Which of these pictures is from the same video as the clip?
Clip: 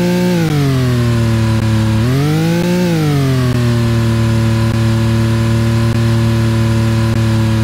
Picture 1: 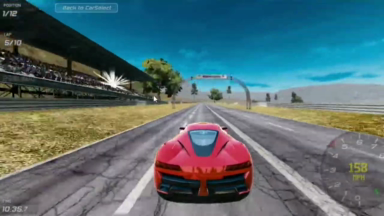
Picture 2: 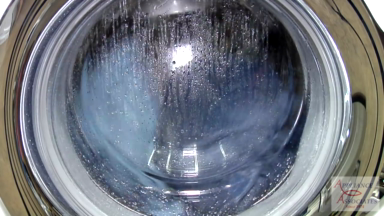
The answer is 1